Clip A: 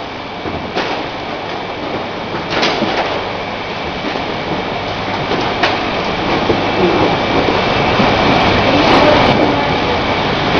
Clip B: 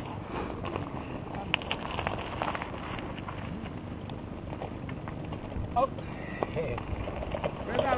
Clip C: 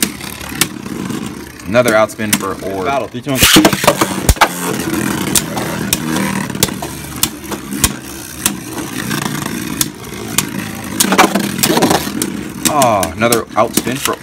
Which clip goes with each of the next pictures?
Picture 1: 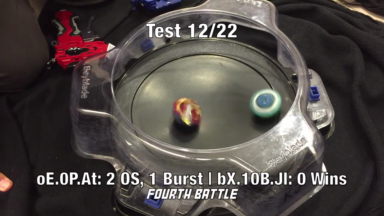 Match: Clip C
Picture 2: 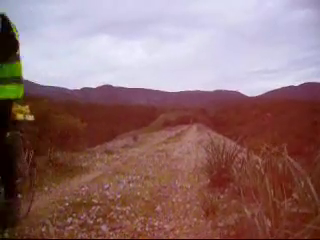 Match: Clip B